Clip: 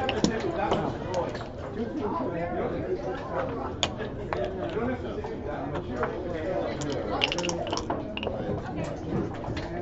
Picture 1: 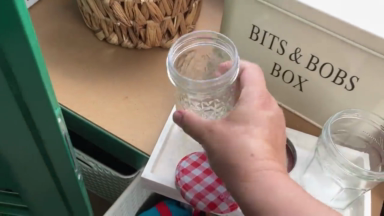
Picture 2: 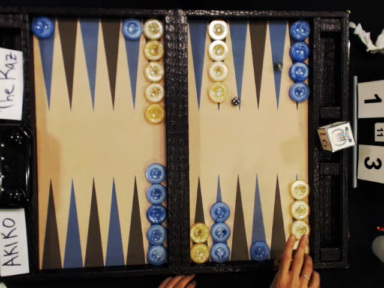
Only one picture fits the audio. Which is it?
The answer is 2